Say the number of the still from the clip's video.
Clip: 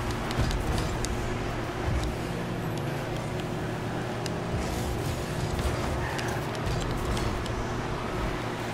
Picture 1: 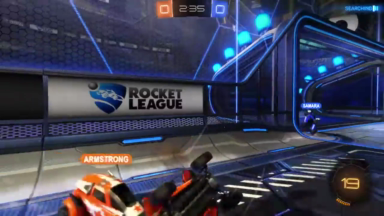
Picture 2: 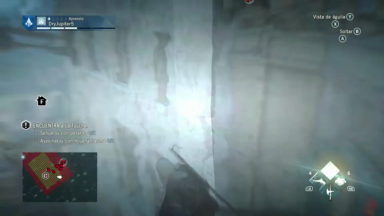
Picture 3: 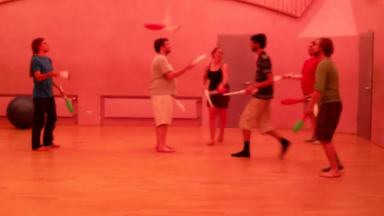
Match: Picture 1